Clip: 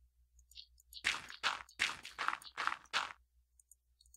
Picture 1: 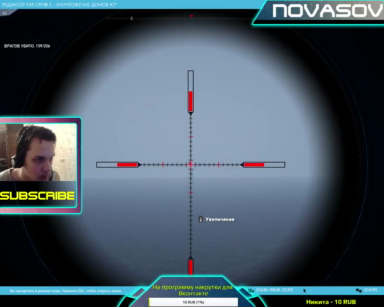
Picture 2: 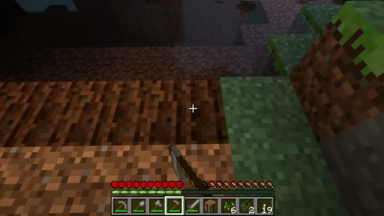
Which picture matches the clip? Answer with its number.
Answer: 2